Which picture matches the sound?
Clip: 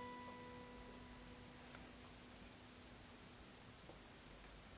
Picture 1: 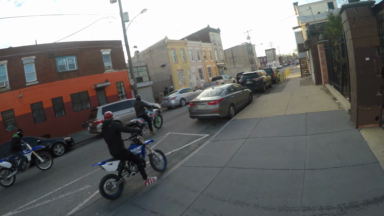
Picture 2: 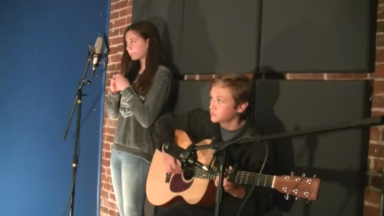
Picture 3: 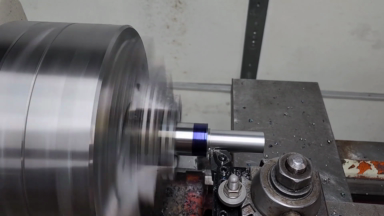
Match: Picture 2